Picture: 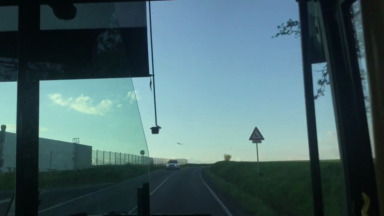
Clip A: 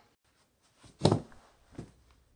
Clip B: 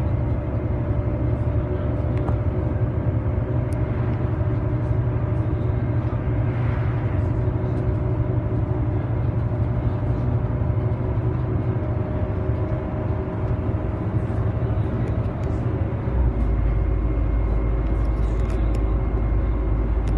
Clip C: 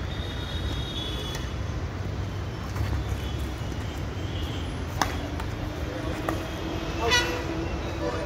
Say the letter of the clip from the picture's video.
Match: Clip B